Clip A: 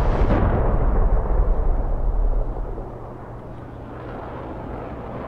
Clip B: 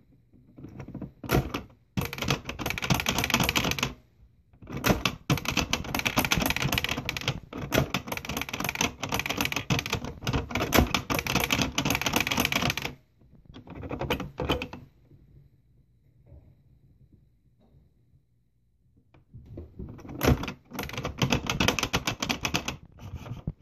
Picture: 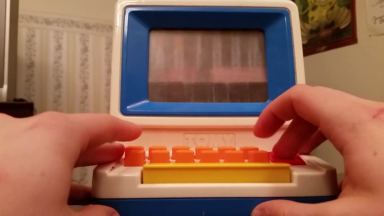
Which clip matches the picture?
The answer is B